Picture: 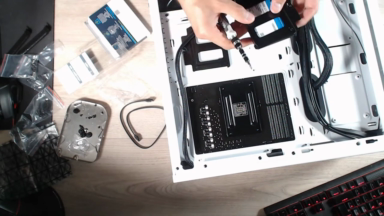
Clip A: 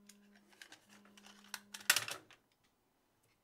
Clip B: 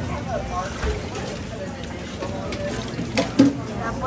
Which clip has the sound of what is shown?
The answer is A